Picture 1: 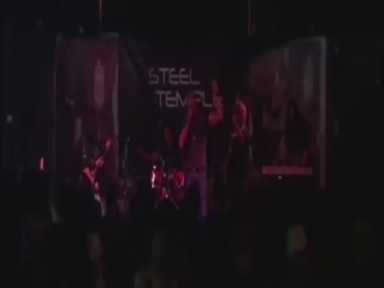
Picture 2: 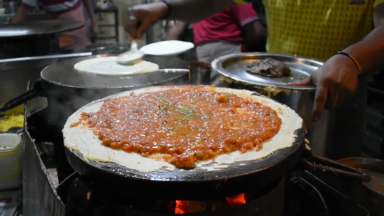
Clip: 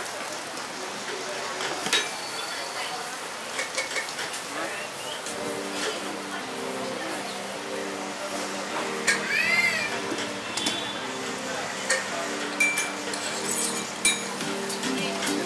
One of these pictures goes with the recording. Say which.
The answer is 2